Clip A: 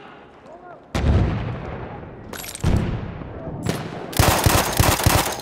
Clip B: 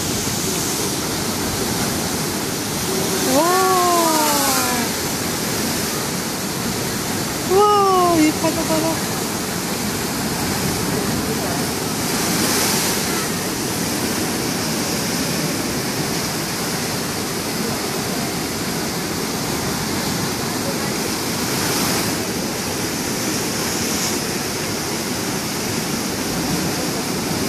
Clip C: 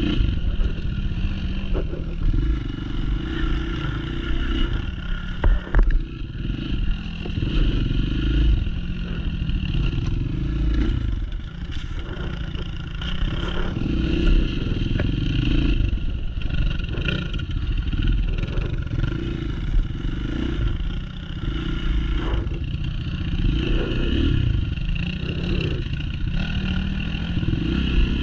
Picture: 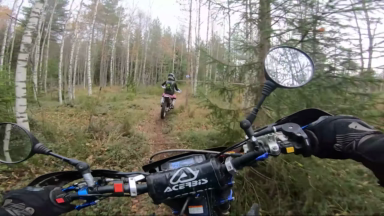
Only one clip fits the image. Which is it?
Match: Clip C